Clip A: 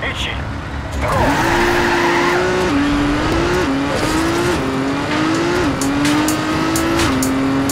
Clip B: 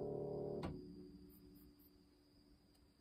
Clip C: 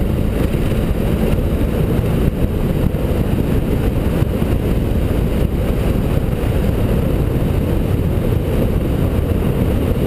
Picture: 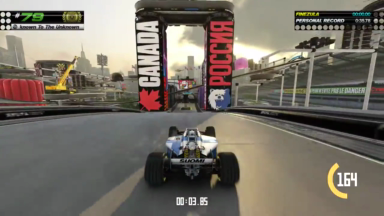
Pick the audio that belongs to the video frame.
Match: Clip A